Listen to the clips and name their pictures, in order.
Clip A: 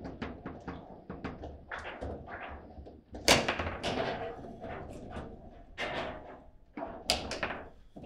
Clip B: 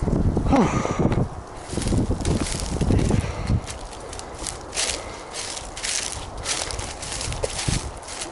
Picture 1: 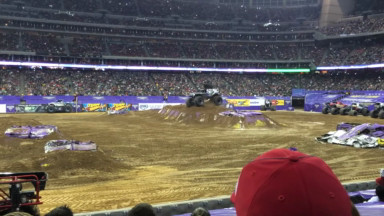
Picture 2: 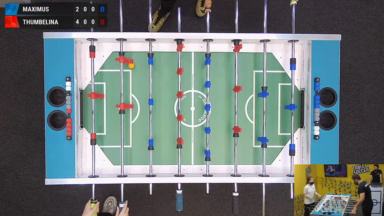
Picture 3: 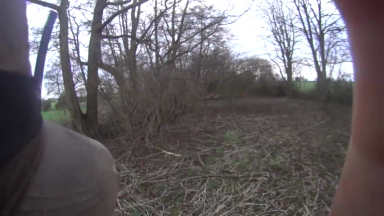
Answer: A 2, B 3